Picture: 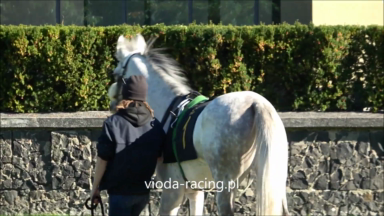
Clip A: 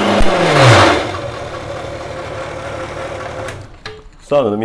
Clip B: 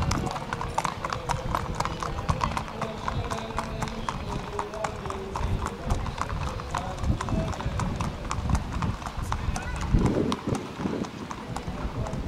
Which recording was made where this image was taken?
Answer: B